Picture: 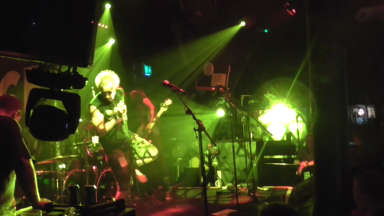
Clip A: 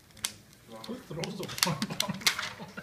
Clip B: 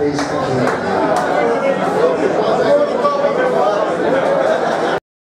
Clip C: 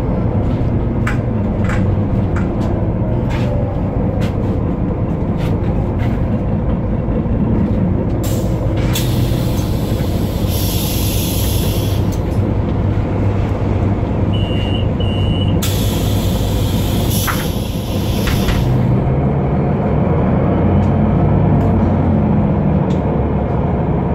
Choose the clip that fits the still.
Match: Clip B